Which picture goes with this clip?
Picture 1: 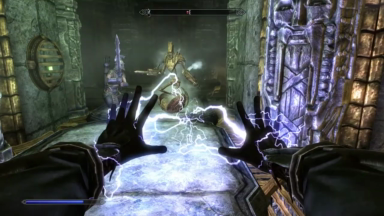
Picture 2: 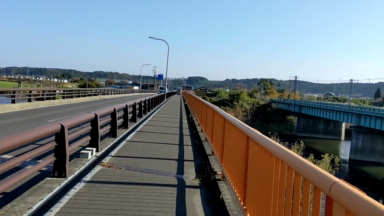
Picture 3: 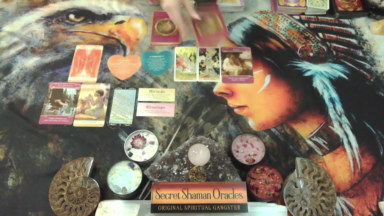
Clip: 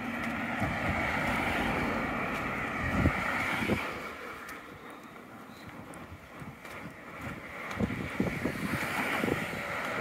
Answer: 2